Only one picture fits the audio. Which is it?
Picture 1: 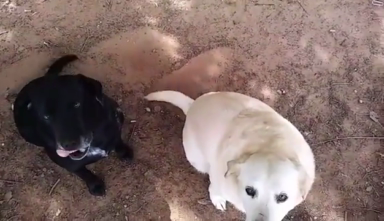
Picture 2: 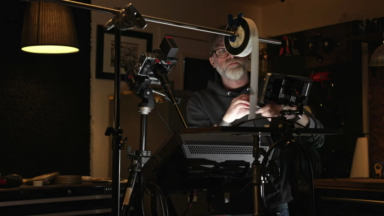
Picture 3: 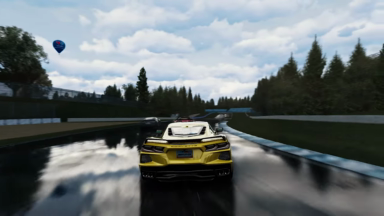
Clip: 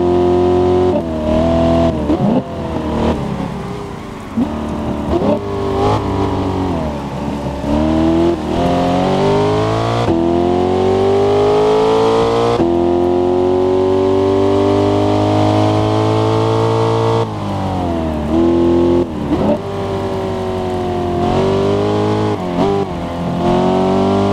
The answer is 3